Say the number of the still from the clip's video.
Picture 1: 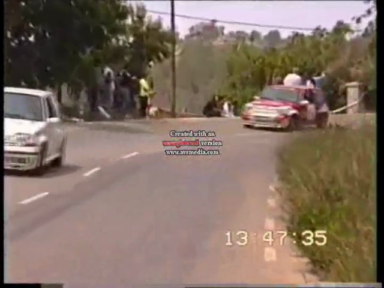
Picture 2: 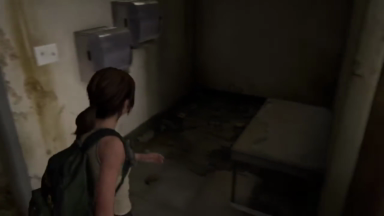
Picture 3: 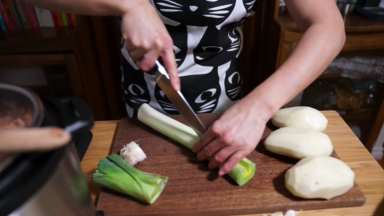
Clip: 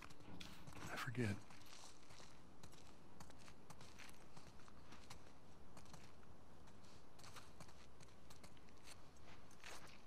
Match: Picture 2